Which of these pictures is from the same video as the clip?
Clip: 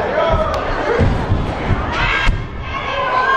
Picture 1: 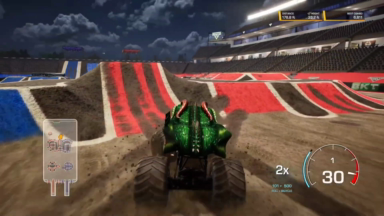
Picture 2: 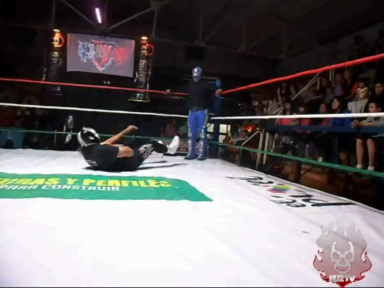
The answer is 2